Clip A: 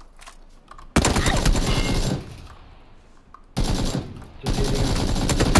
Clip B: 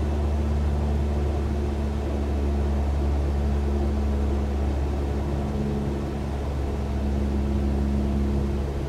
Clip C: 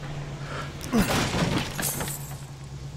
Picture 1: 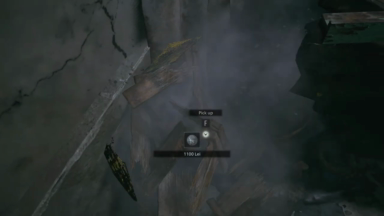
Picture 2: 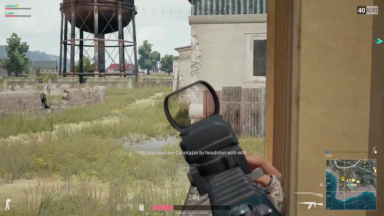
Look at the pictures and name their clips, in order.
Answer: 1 C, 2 A